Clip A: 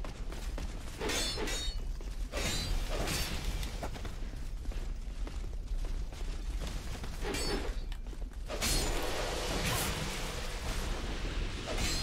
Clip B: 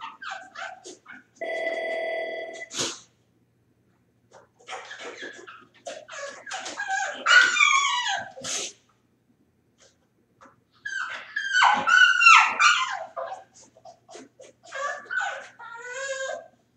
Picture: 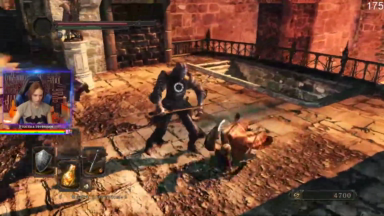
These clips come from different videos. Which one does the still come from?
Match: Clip A